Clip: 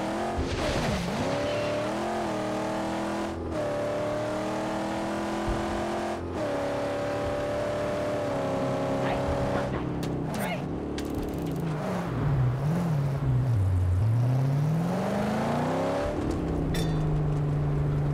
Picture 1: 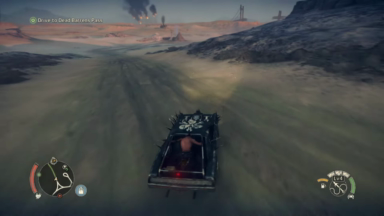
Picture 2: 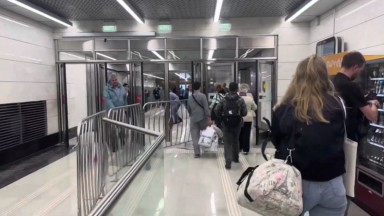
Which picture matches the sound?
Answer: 1